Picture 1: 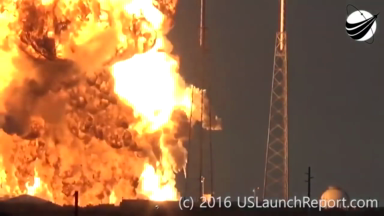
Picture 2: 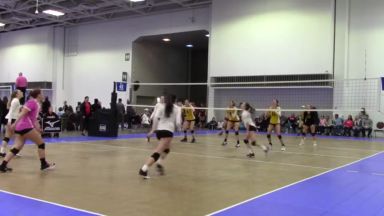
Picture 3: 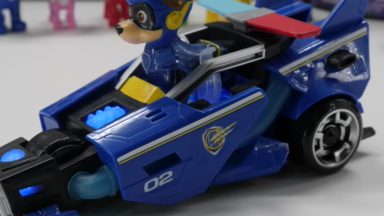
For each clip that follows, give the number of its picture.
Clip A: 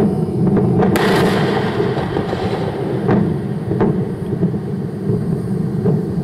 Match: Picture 1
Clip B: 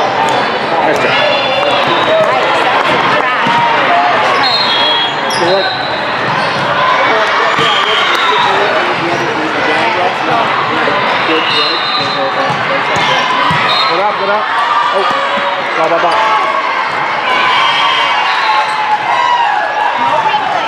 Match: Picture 2